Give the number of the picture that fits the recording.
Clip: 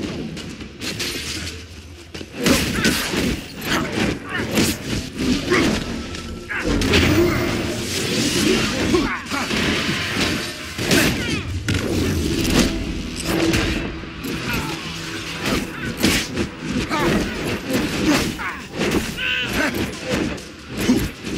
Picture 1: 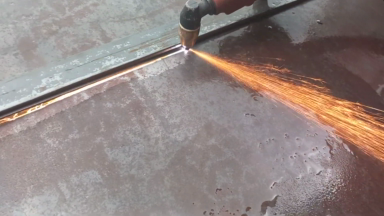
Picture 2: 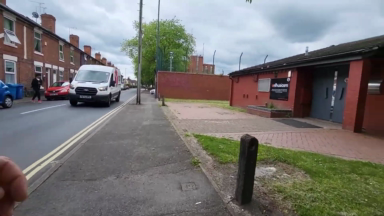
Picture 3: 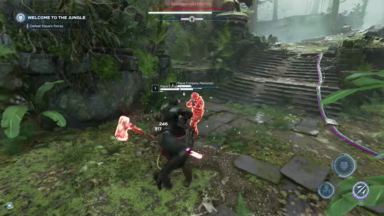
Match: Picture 3